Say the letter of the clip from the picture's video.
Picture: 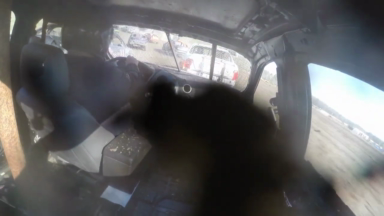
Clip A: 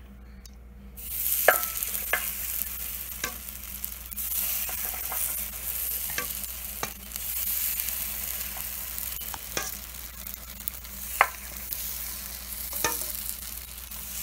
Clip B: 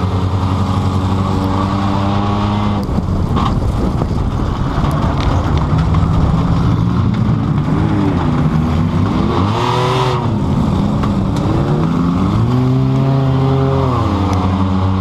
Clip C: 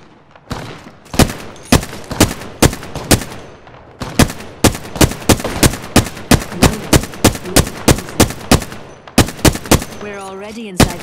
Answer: B